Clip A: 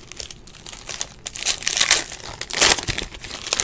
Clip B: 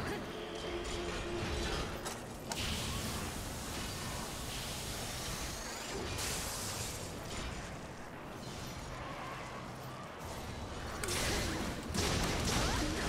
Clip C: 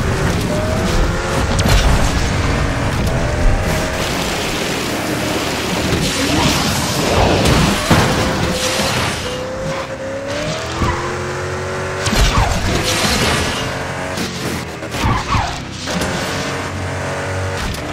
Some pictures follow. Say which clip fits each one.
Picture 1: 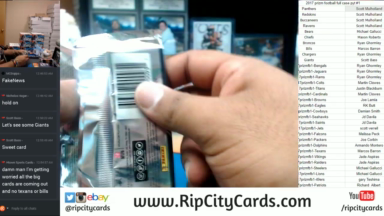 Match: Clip A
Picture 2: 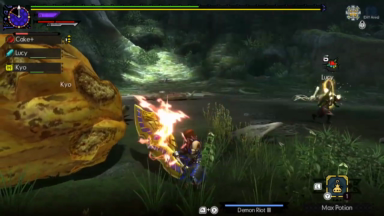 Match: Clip B